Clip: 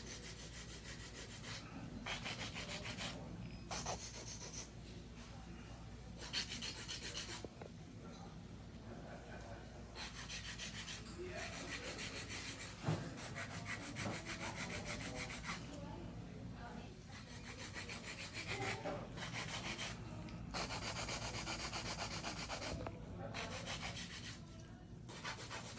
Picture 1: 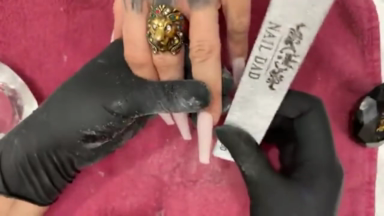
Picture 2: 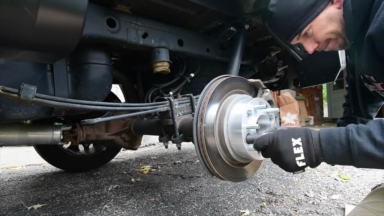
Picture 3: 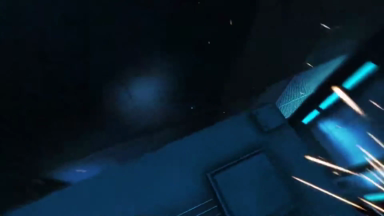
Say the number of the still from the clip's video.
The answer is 1